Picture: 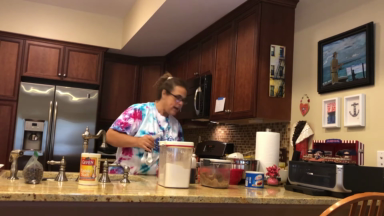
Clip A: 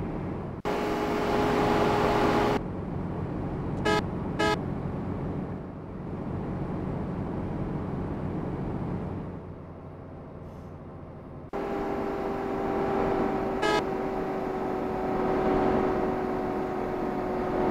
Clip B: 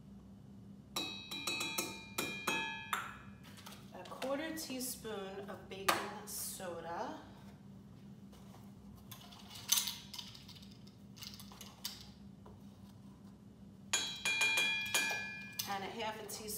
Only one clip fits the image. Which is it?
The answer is B